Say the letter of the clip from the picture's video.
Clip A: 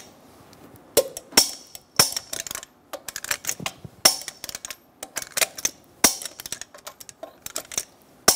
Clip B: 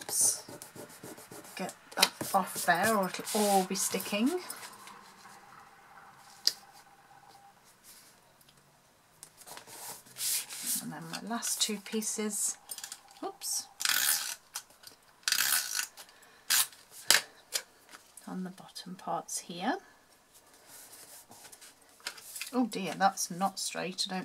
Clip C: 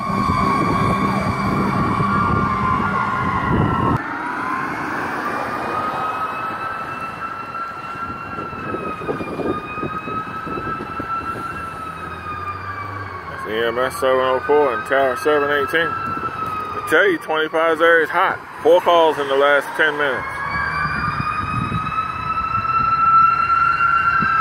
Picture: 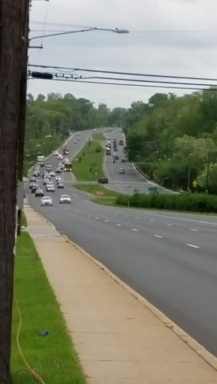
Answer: C